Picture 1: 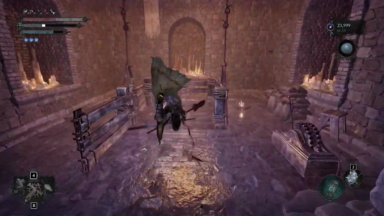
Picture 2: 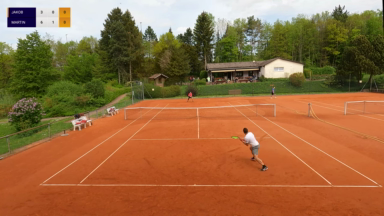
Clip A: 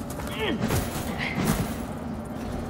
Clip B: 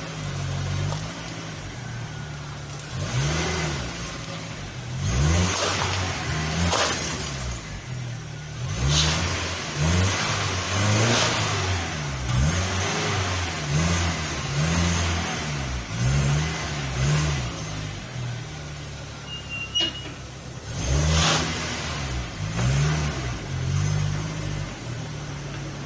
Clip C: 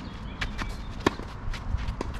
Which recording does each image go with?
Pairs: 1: A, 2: C